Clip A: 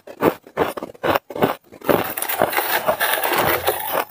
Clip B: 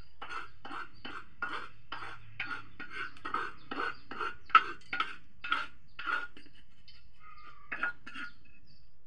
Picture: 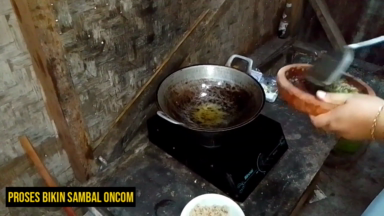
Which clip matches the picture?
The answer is B